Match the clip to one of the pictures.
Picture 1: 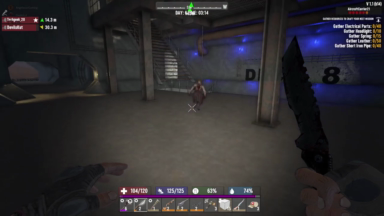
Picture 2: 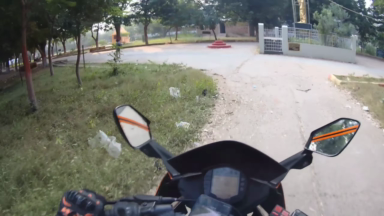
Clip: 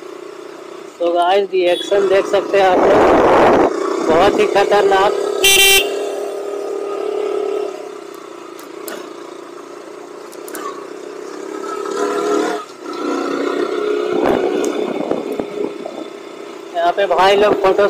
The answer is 2